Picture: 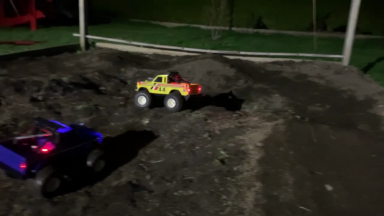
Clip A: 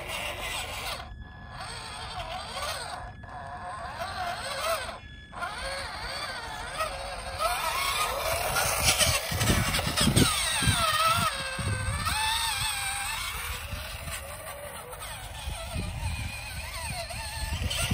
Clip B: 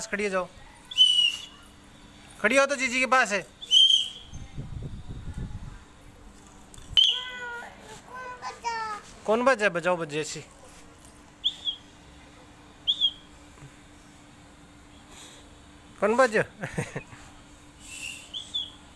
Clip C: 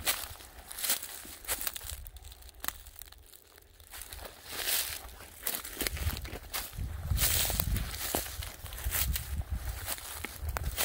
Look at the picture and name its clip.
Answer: A